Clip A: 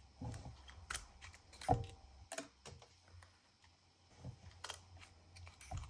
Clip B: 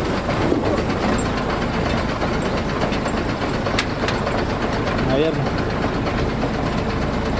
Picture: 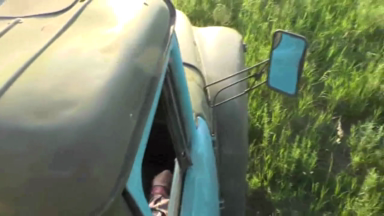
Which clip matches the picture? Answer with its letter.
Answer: B